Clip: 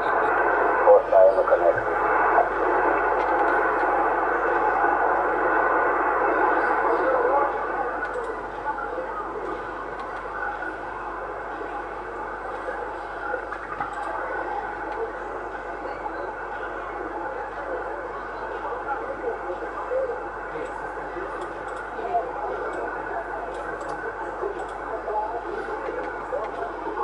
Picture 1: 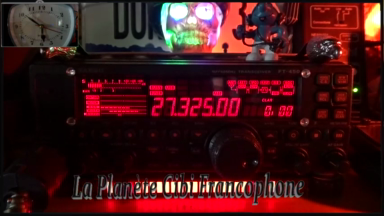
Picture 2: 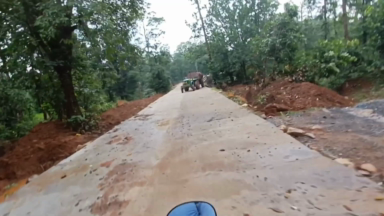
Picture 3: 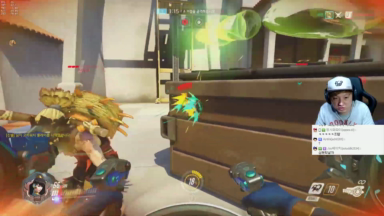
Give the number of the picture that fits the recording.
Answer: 1